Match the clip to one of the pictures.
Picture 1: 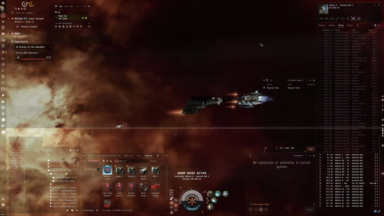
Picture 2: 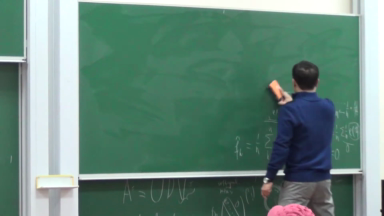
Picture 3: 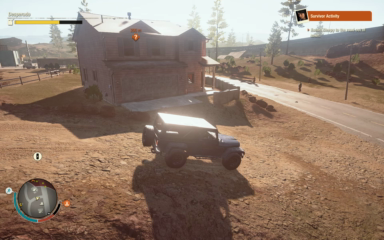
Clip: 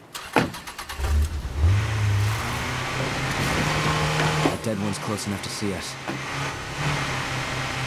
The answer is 3